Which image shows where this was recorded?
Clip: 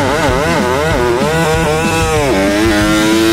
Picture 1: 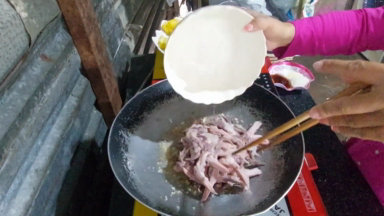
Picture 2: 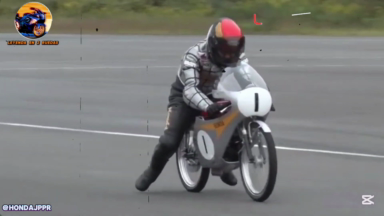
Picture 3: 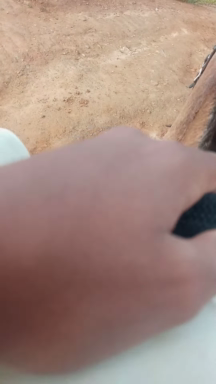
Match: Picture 2